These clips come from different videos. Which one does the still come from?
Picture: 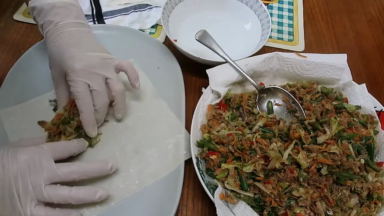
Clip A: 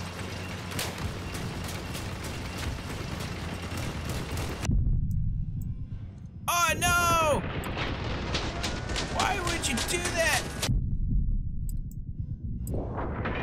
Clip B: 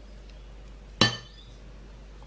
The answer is B